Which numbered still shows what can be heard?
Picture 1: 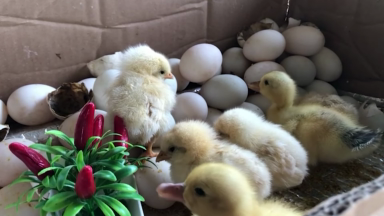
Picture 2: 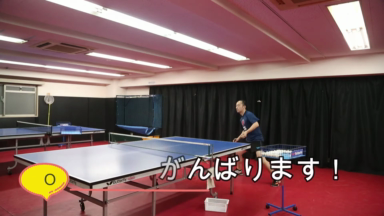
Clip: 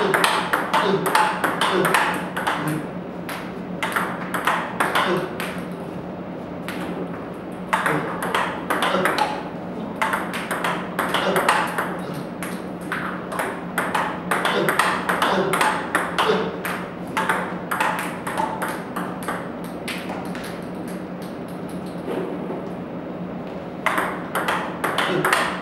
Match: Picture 2